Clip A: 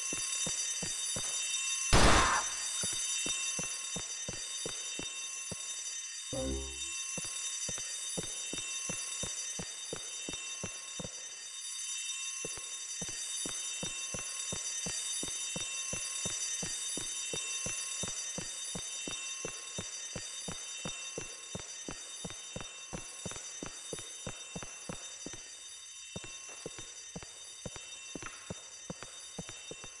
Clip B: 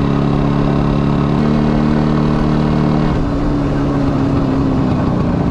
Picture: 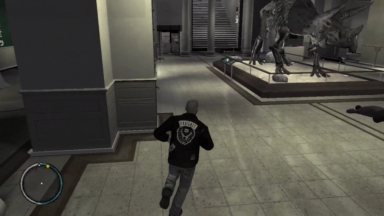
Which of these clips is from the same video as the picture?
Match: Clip A